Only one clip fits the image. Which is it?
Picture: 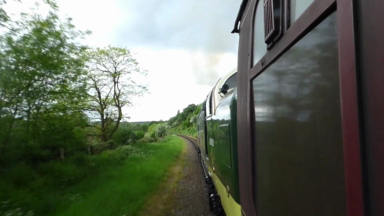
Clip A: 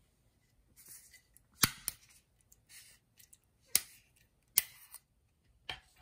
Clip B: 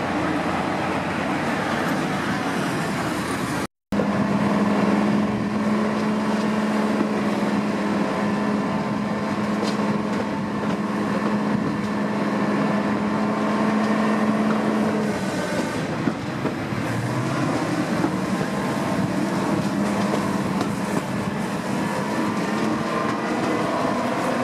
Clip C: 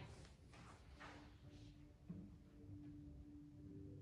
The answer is B